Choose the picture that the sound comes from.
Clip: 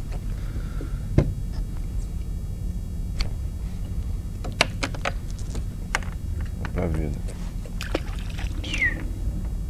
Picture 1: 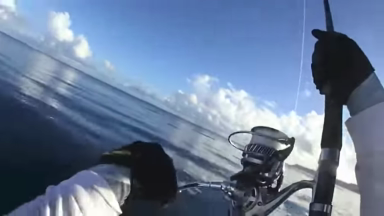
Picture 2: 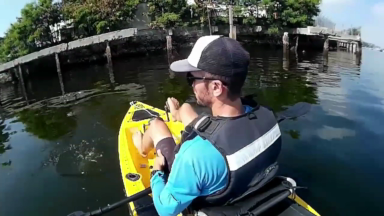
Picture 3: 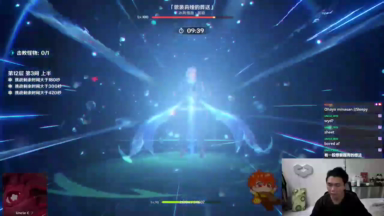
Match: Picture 2